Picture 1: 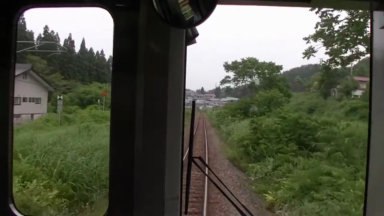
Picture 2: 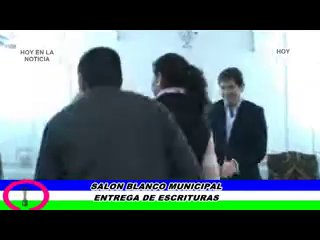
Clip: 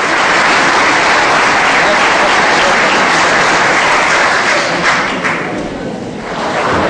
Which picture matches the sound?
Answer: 2